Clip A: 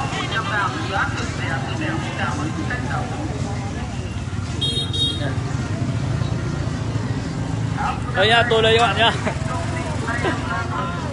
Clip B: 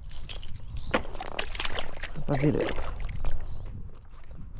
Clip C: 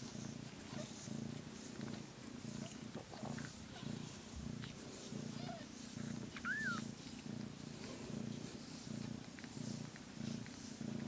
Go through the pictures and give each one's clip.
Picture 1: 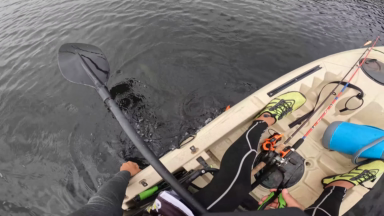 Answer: B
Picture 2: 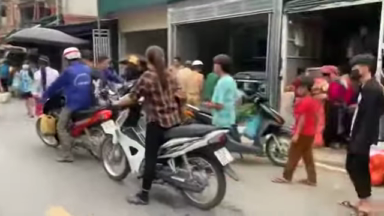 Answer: A